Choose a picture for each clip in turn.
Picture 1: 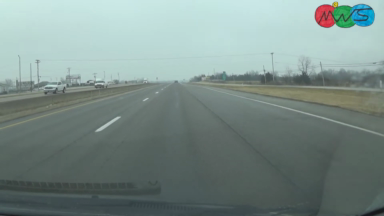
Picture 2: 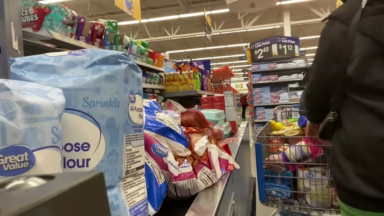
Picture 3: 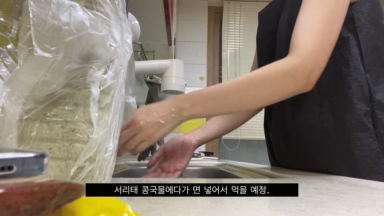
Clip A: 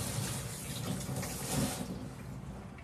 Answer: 3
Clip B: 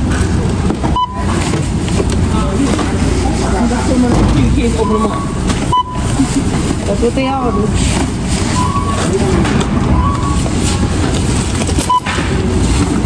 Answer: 2